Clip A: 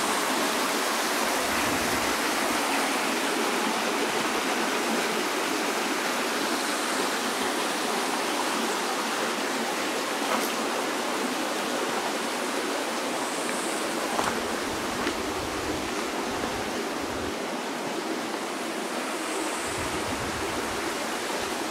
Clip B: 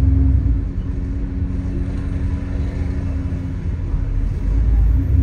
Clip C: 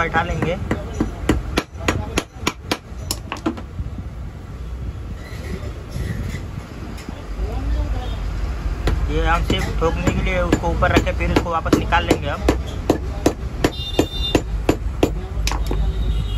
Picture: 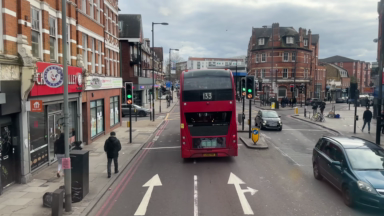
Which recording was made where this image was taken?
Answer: B